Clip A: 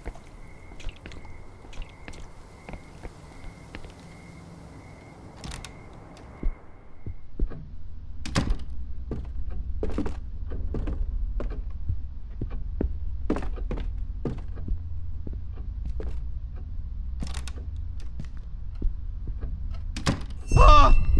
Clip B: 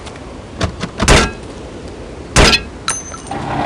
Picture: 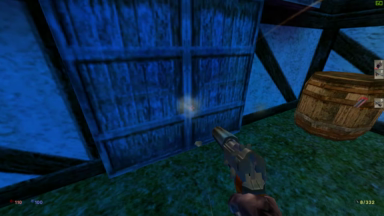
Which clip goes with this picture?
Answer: B